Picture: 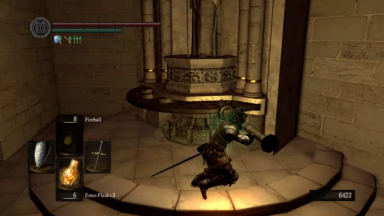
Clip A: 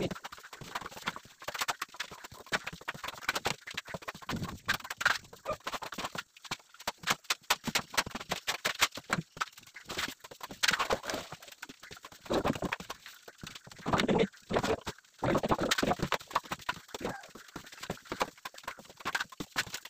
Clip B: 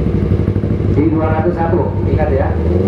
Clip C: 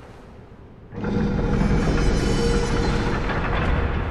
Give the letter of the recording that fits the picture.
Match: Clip C